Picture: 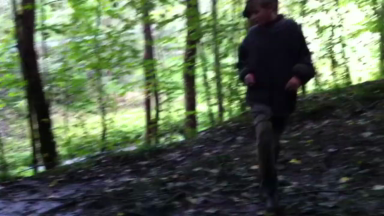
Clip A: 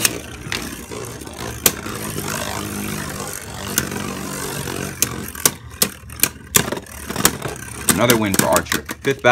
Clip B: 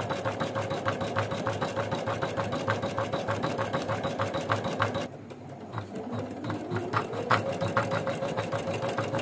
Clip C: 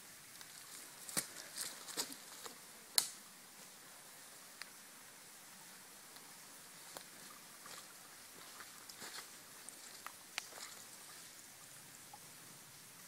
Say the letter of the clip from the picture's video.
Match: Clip C